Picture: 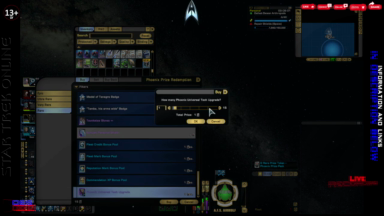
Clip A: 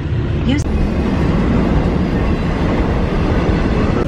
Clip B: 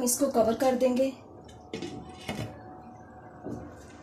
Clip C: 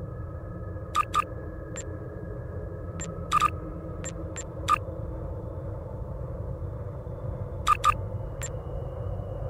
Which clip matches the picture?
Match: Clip C